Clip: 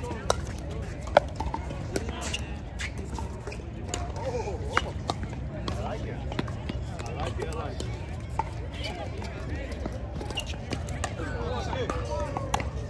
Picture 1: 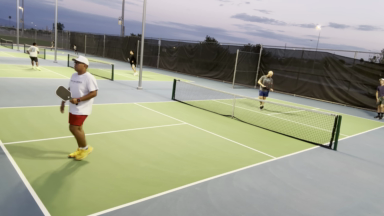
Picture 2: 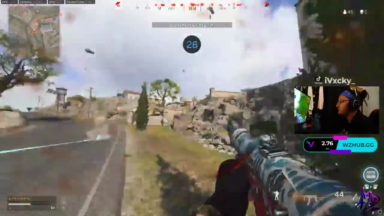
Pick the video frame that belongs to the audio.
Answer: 1